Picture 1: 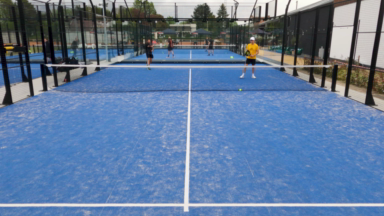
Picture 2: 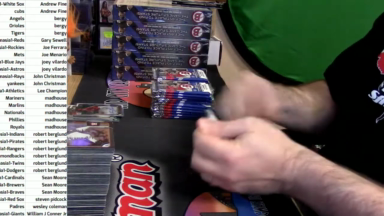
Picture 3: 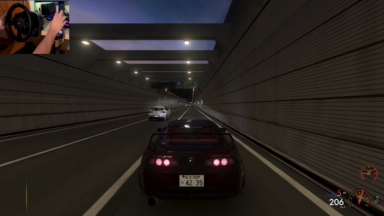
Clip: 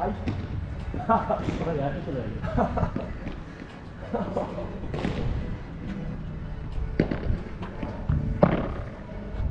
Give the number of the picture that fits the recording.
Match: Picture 1